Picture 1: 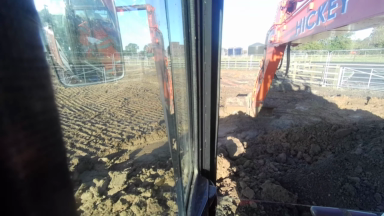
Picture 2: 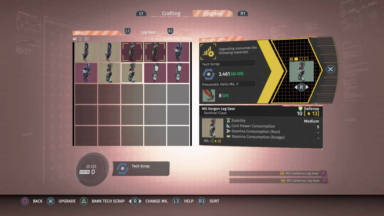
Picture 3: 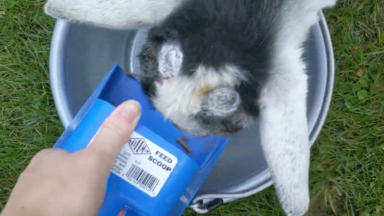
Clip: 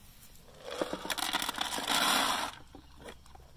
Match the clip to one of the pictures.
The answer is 3